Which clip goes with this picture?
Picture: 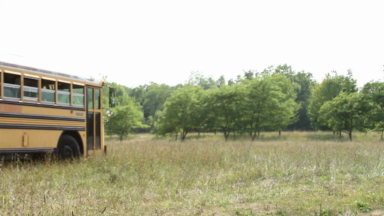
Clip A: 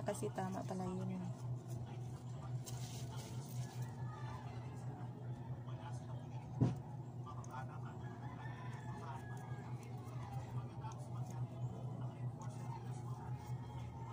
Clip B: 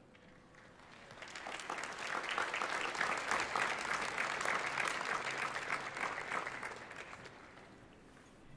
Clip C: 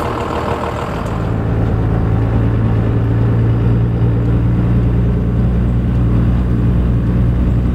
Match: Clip C